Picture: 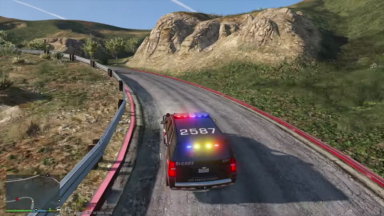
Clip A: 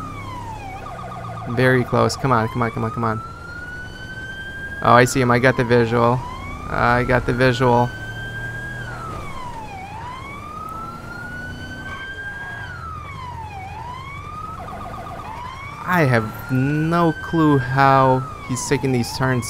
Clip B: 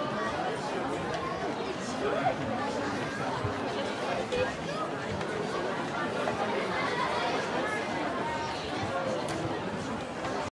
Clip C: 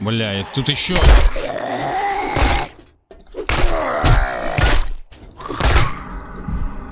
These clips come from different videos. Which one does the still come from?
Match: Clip A